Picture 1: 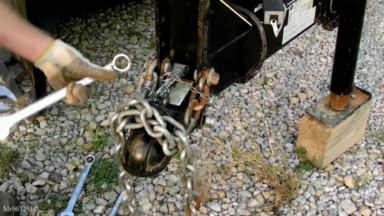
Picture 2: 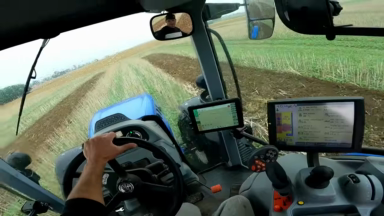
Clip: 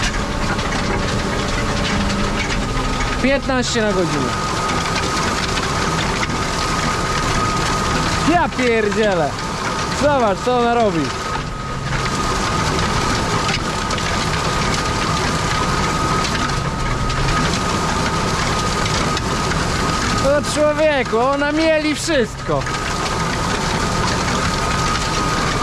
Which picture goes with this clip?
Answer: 2